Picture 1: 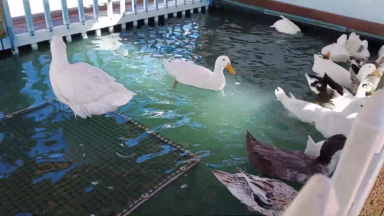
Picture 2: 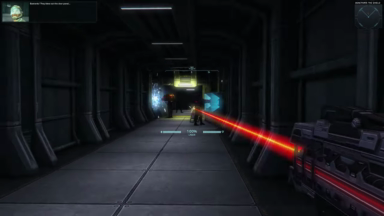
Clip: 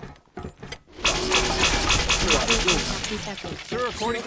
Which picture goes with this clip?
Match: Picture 2